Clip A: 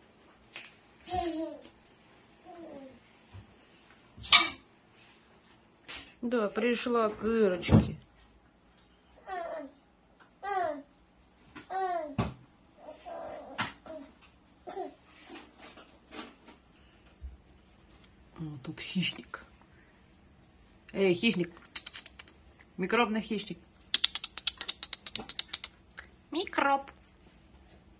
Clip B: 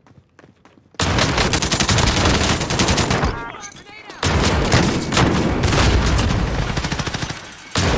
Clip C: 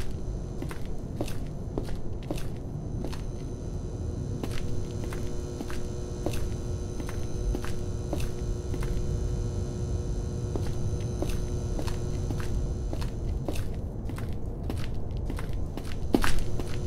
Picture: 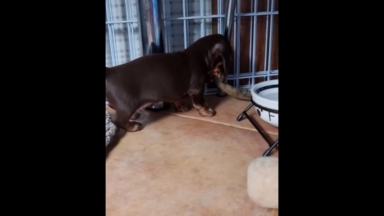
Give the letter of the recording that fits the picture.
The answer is A